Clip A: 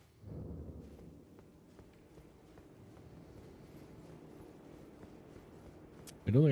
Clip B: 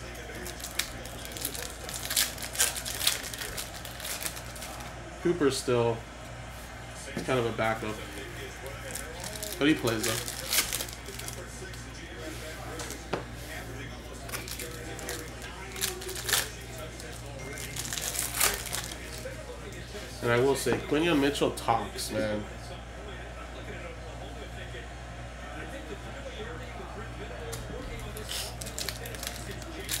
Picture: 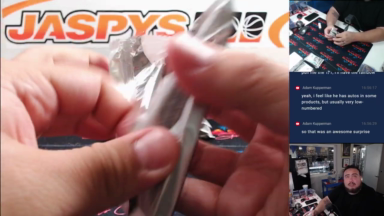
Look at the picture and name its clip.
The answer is B